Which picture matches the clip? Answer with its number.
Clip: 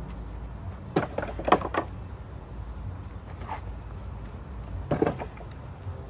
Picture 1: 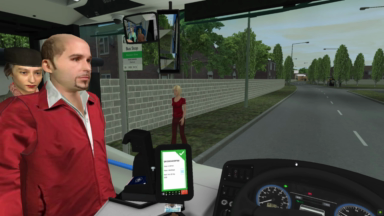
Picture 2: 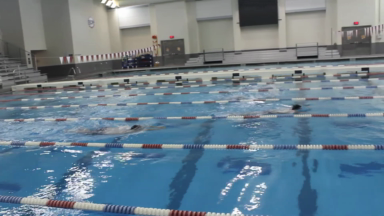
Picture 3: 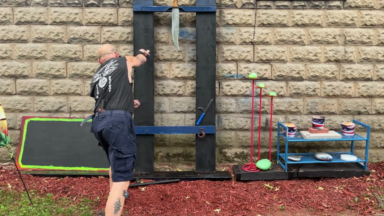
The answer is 3